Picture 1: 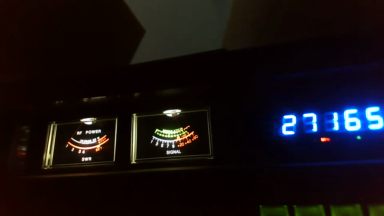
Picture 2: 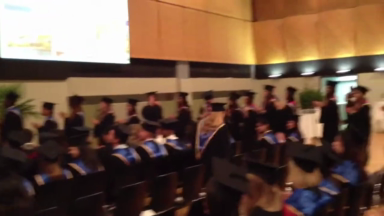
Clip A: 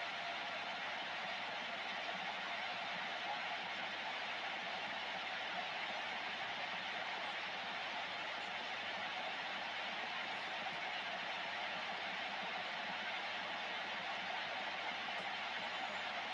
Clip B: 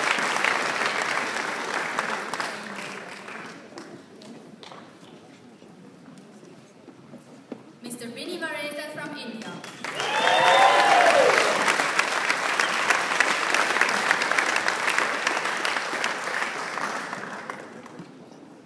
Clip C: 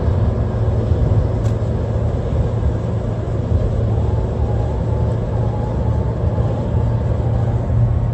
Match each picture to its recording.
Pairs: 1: A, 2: B